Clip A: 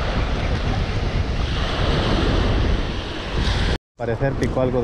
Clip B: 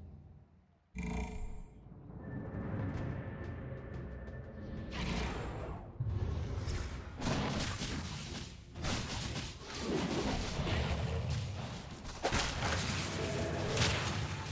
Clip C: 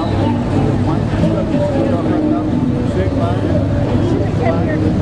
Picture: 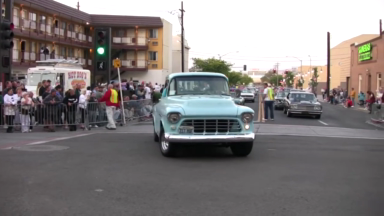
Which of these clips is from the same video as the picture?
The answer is C